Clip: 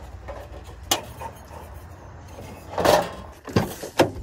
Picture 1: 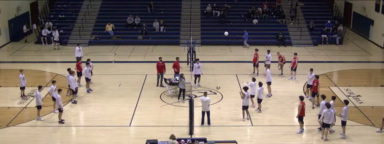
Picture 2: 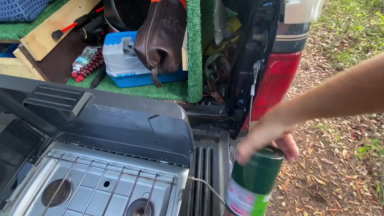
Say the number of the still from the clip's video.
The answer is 2